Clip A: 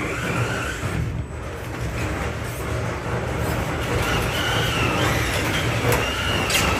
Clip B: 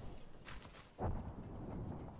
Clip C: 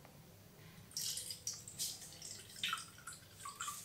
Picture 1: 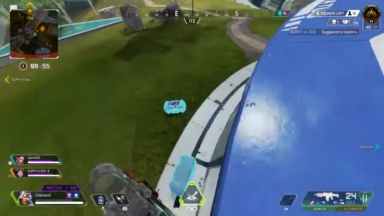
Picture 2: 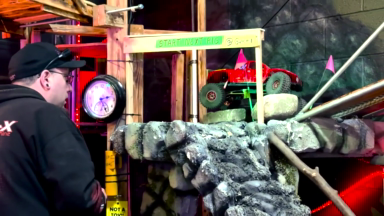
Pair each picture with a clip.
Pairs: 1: B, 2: A